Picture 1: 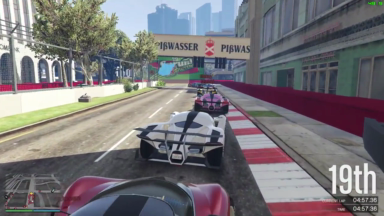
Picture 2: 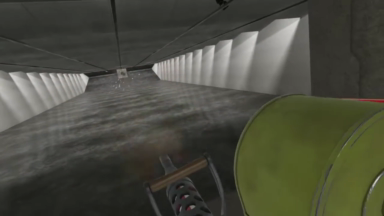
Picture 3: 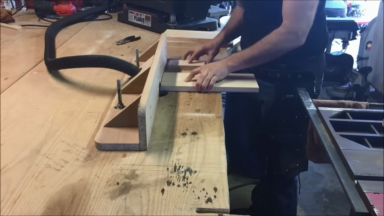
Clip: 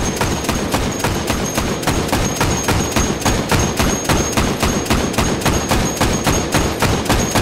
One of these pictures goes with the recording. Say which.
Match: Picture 2